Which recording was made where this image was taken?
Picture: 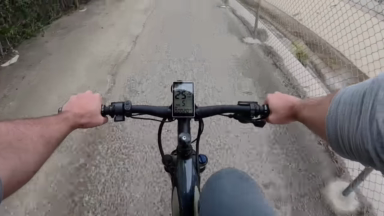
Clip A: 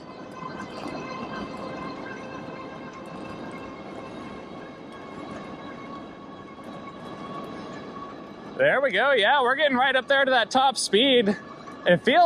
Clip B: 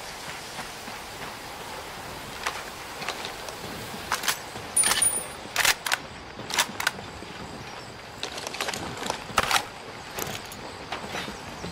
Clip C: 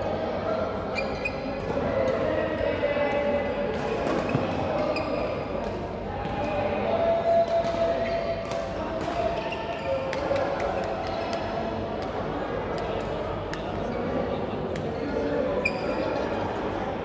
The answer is A